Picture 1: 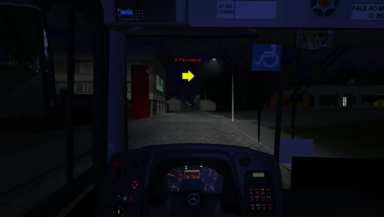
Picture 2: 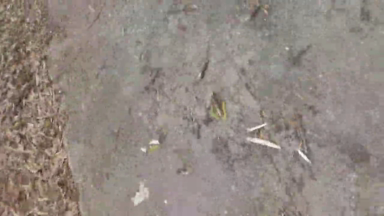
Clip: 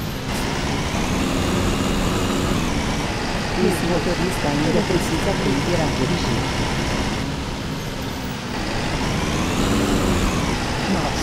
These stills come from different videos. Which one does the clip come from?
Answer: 1